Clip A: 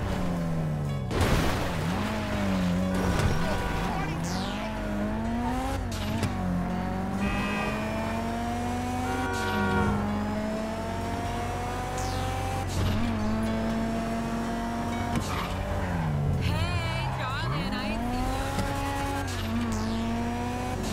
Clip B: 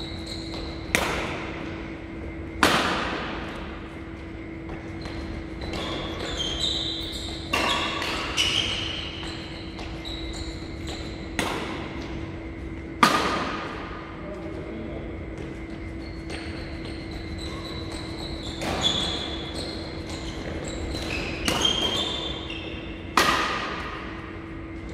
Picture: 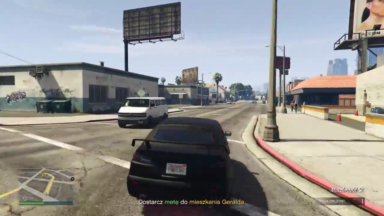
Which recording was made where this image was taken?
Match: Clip A